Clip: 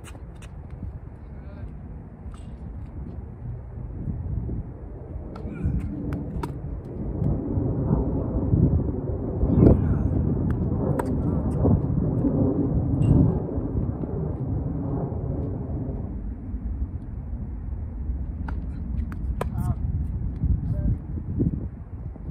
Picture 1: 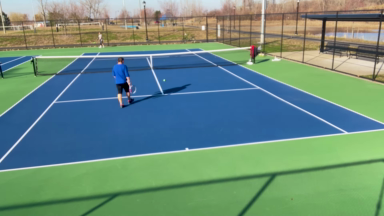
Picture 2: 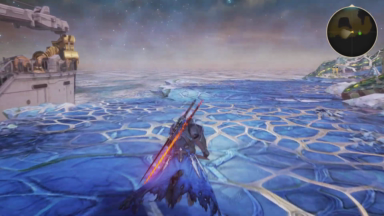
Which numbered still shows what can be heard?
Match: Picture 1